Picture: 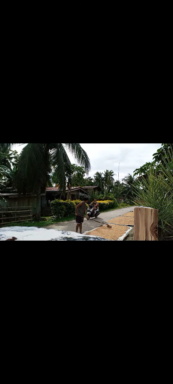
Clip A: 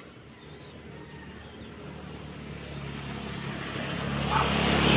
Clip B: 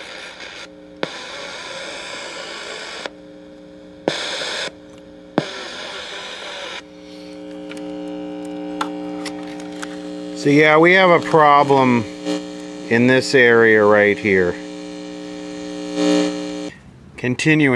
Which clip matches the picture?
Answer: A